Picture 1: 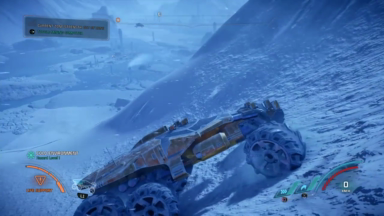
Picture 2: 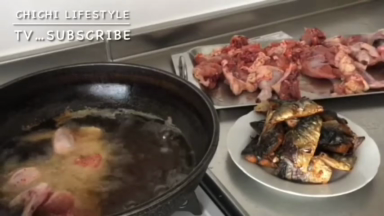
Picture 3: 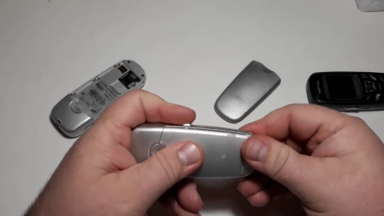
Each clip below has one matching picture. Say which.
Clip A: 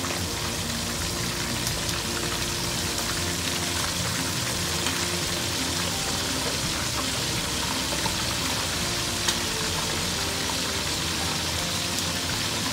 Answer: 2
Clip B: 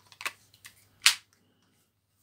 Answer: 3